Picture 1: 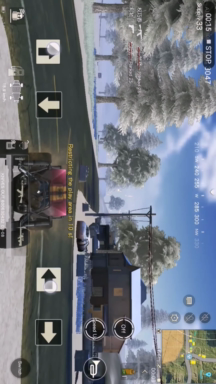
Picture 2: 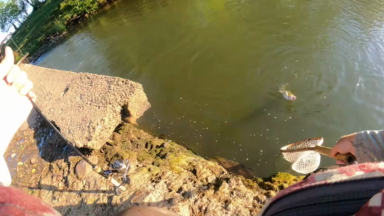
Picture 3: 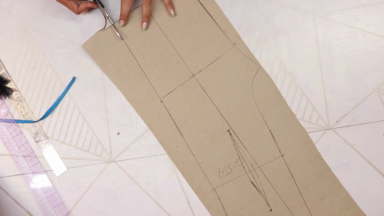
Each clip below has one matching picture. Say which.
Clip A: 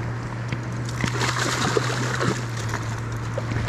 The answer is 2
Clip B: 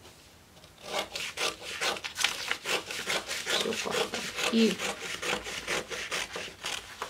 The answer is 3